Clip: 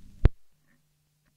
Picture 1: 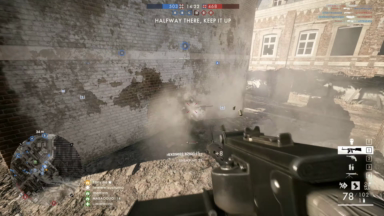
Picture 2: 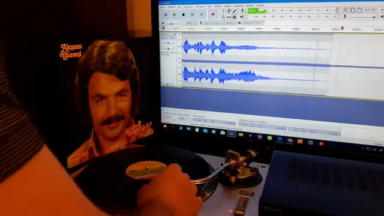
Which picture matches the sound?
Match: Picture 2